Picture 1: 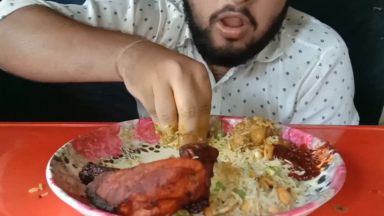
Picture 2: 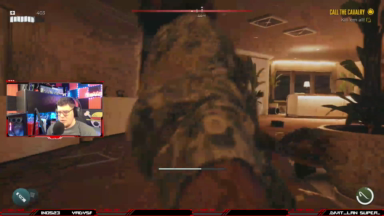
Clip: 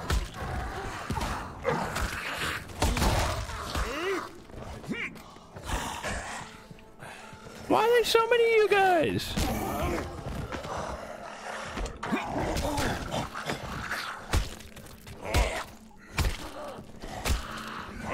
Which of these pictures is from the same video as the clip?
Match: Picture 2